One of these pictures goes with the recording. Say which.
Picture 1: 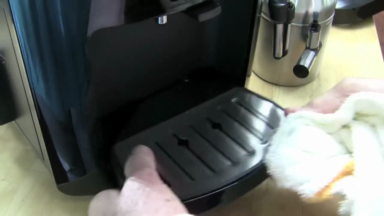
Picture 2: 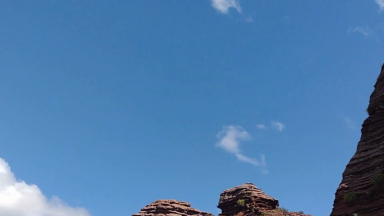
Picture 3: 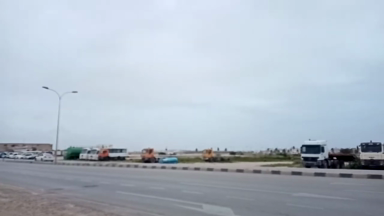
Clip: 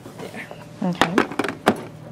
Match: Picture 1